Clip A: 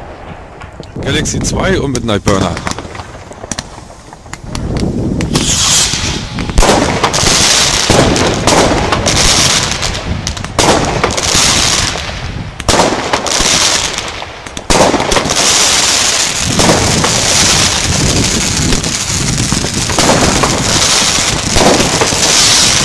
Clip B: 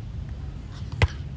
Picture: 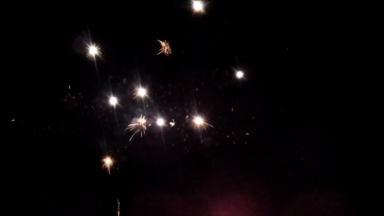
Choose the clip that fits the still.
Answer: A